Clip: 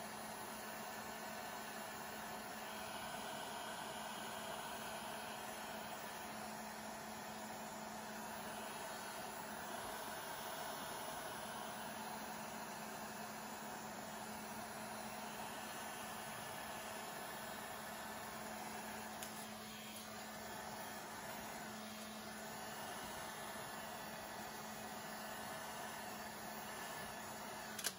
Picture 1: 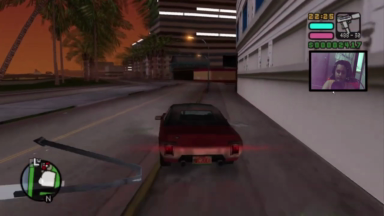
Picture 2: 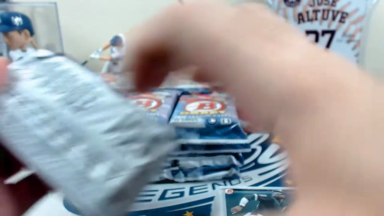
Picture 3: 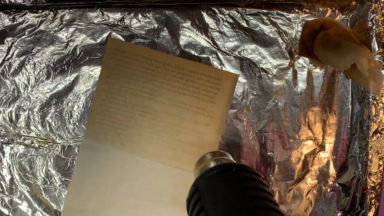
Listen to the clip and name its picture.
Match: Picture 3